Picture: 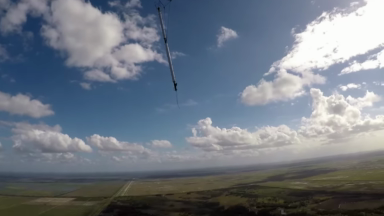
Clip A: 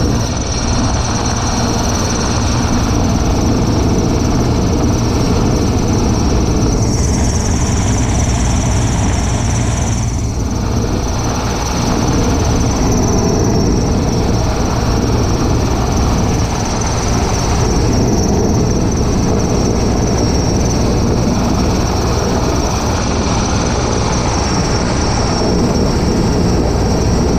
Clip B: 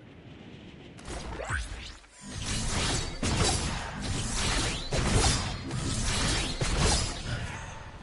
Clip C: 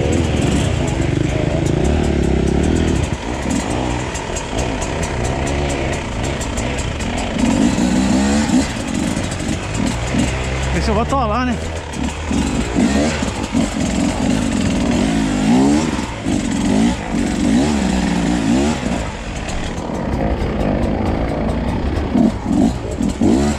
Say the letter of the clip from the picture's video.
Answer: A